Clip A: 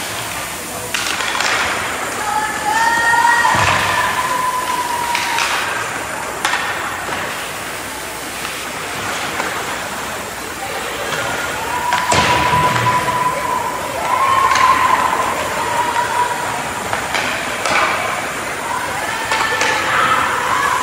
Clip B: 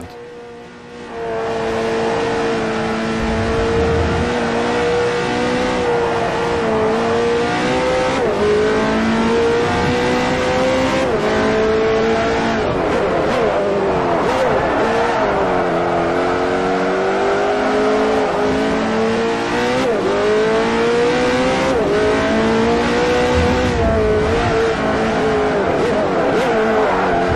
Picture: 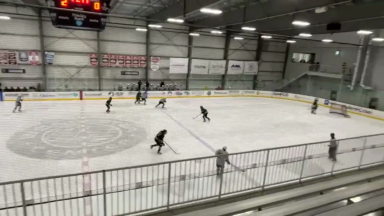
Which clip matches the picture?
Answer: A